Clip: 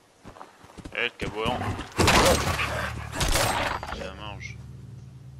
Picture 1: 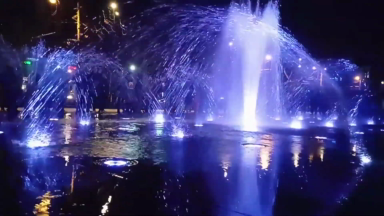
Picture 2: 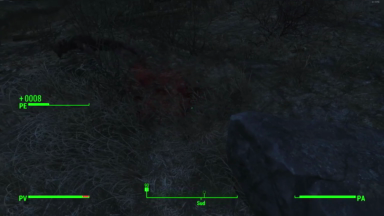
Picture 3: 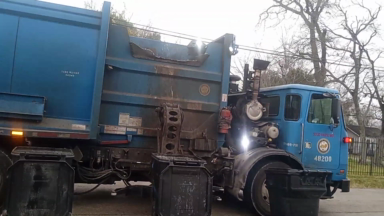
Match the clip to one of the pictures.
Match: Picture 2